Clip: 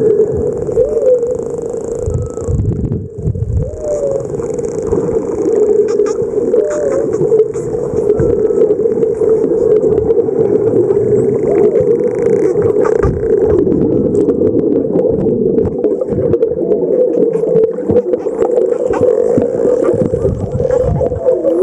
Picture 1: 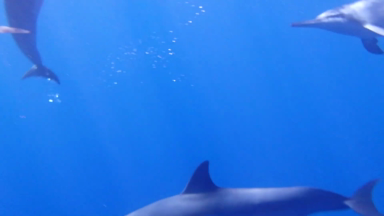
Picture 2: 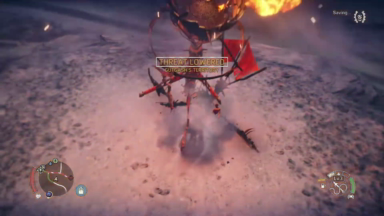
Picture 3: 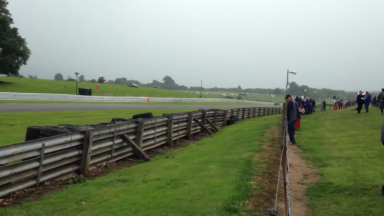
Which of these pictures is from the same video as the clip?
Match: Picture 1